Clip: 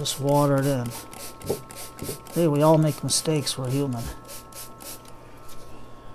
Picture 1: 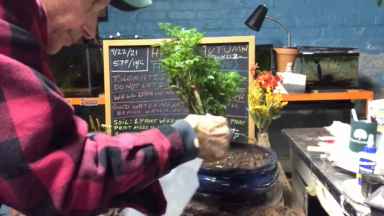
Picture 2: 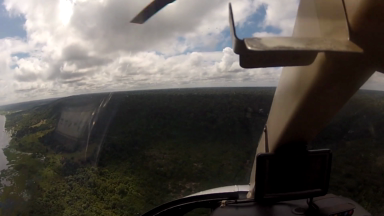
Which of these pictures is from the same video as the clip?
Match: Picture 1